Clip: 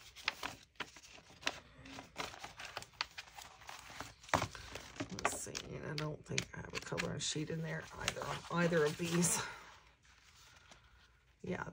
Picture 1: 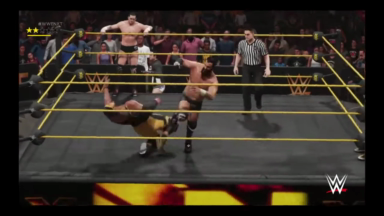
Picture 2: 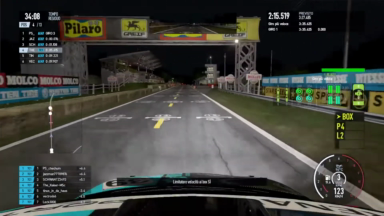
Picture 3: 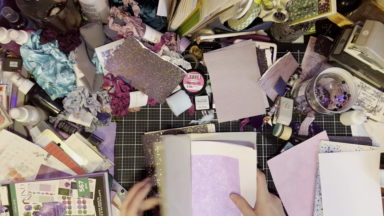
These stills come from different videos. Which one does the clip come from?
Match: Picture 3